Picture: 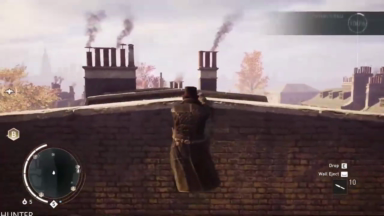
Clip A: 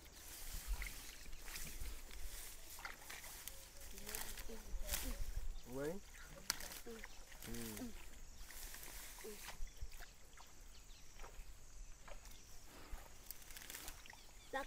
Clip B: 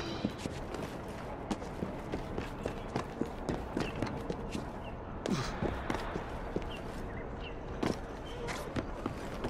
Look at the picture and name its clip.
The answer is B